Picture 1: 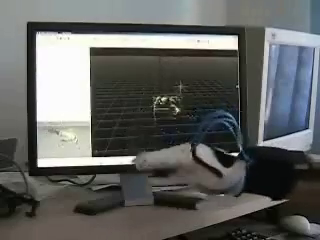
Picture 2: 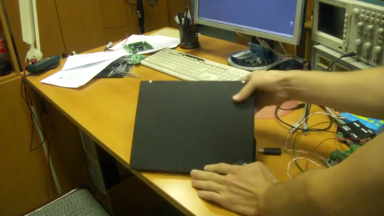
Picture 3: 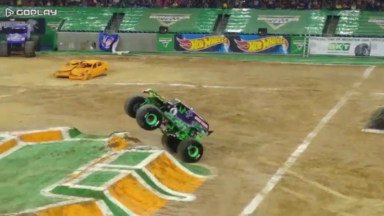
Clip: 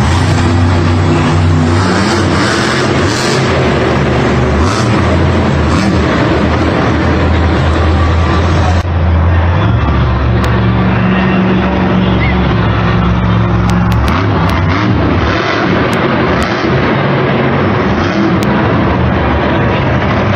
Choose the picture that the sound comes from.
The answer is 3